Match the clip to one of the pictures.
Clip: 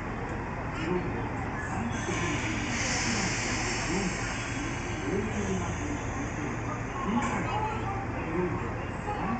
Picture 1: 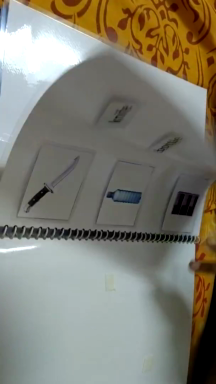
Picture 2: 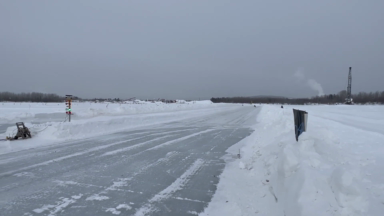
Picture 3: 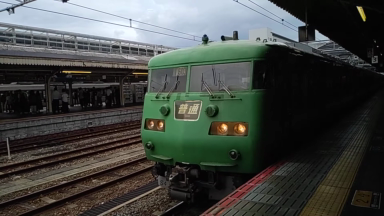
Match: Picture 3